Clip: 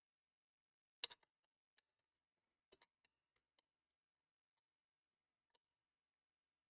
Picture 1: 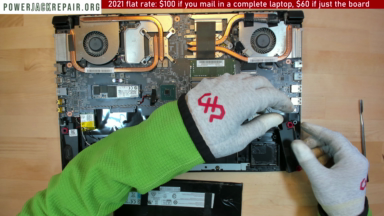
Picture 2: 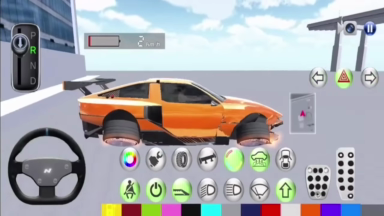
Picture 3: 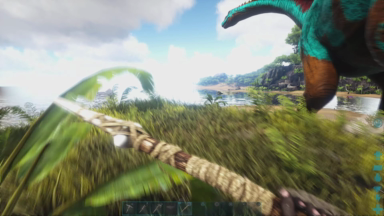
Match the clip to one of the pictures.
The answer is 1